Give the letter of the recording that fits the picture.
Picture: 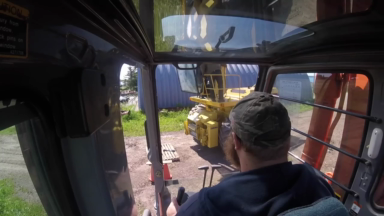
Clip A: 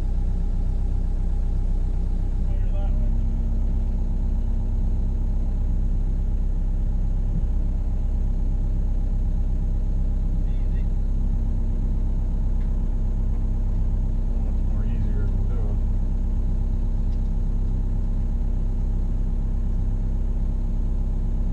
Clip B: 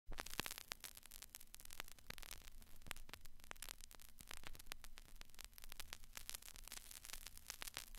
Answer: A